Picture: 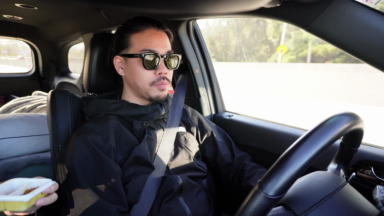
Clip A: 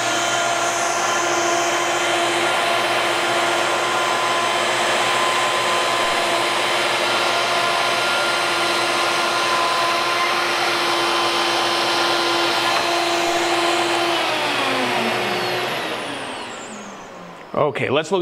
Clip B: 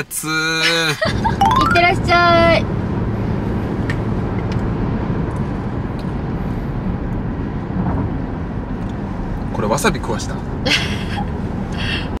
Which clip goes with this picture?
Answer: B